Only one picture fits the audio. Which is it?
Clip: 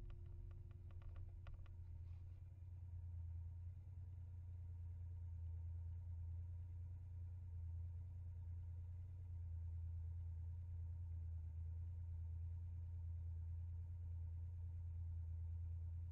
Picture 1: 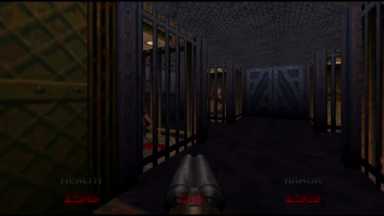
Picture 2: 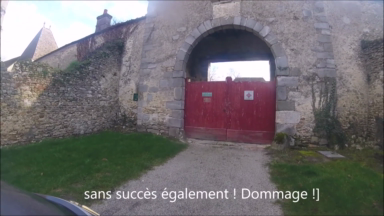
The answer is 2